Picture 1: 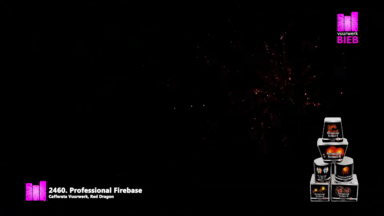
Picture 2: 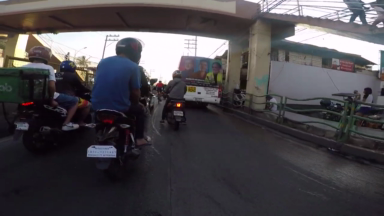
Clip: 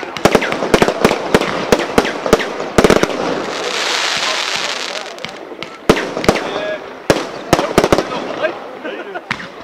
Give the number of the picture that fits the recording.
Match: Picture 1